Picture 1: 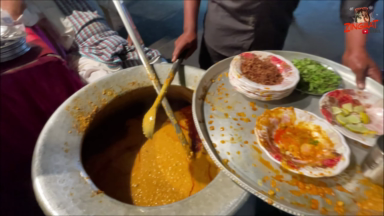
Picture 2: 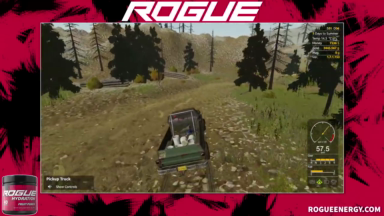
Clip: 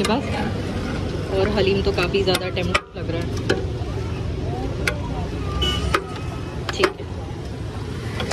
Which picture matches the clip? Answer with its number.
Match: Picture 1